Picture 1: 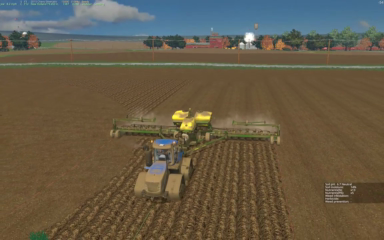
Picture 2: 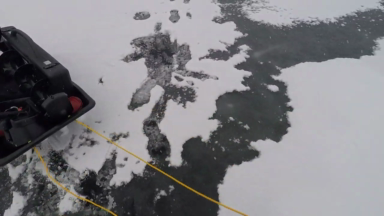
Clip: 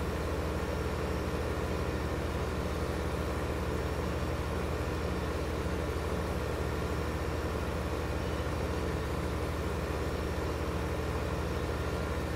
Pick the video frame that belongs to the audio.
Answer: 1